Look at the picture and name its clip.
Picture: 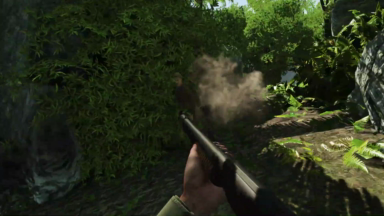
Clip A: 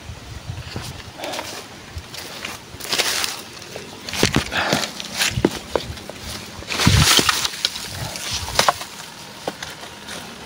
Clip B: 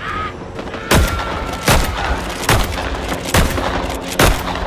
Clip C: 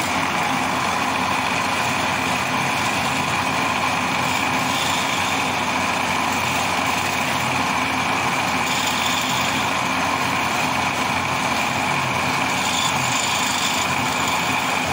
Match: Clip B